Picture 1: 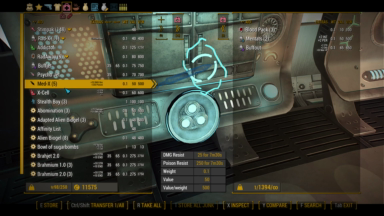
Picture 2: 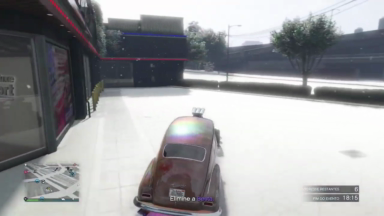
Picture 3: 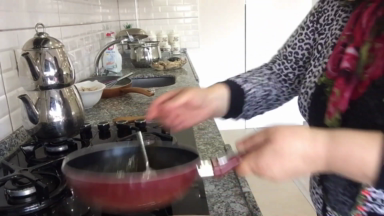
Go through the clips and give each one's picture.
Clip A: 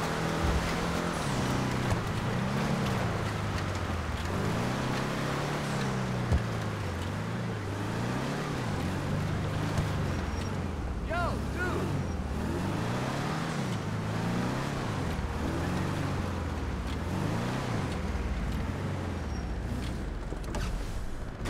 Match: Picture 2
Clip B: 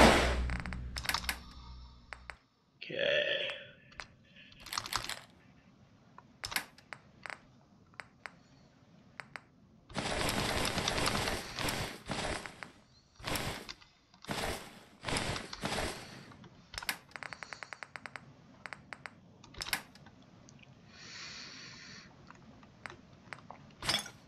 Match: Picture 1